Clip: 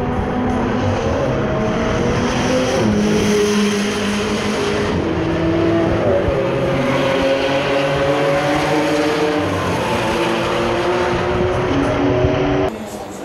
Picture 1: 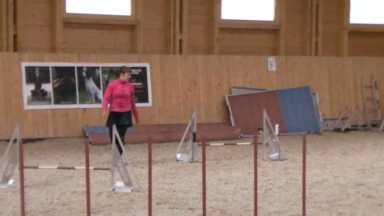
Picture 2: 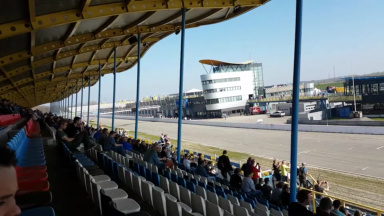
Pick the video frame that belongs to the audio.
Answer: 2